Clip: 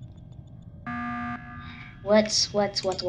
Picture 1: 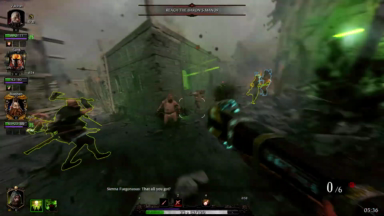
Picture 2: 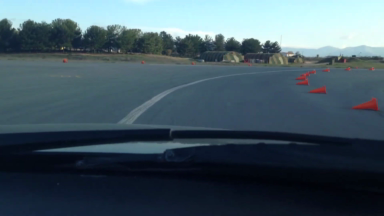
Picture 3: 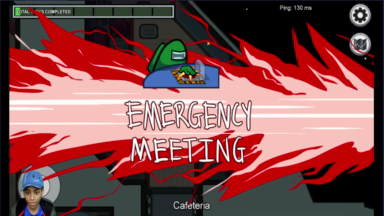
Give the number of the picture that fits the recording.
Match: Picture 3